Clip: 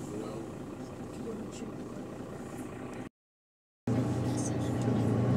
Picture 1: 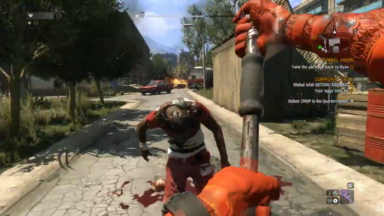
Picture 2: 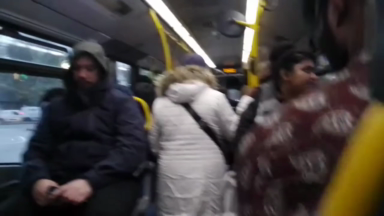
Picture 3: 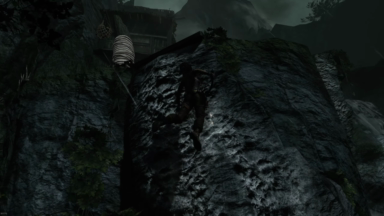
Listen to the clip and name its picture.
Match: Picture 2